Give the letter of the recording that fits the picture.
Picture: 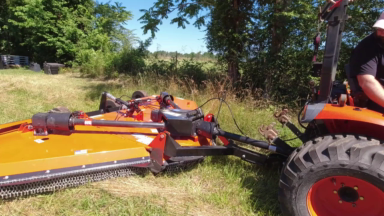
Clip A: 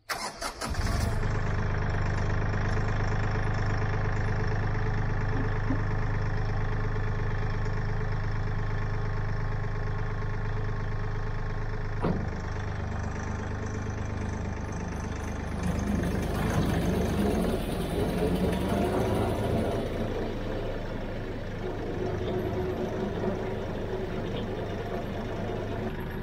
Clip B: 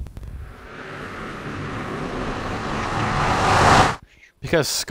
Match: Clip A